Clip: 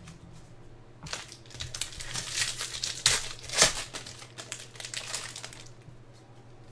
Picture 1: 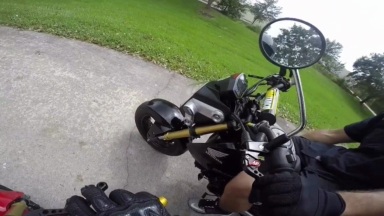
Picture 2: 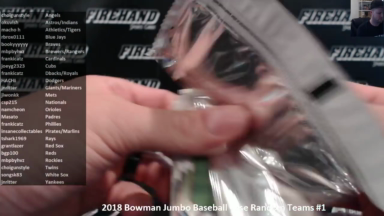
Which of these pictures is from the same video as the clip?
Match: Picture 2